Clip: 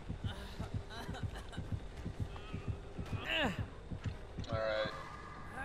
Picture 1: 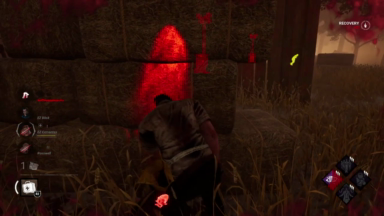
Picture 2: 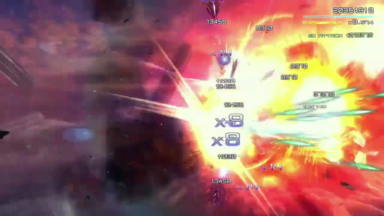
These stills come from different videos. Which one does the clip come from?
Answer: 1